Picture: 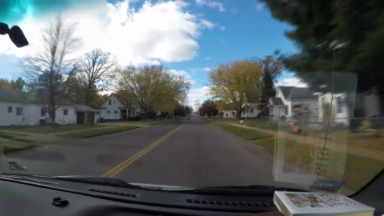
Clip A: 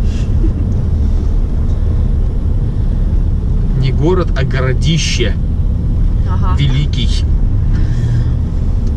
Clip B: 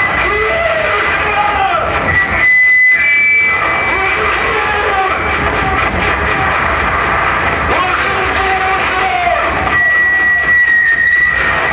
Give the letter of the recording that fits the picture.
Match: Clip A